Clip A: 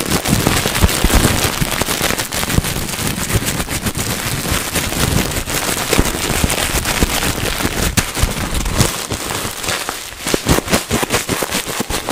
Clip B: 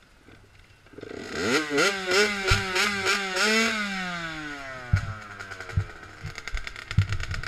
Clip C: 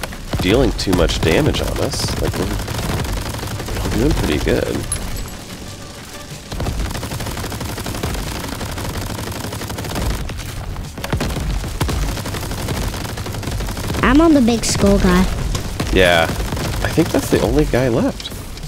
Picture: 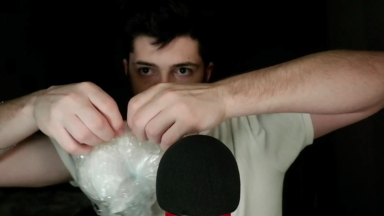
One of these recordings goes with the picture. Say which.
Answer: A